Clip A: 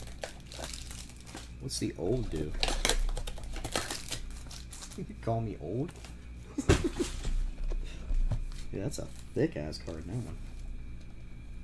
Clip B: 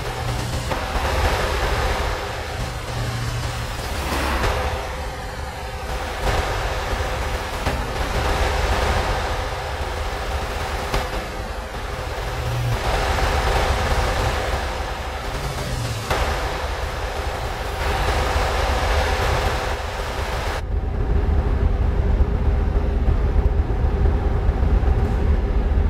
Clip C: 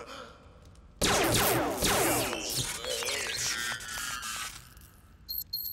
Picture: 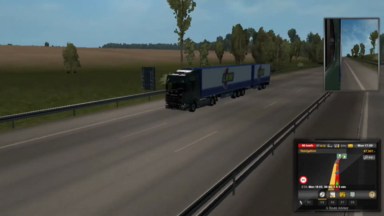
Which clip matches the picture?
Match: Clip B